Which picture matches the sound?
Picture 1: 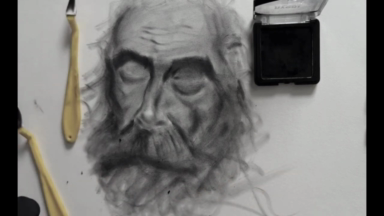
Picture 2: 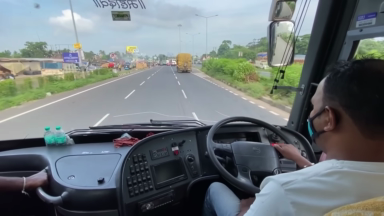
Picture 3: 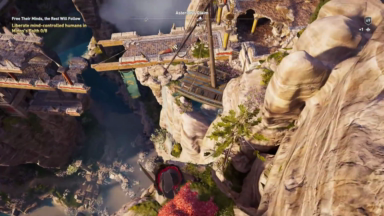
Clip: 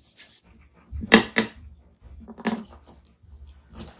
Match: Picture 1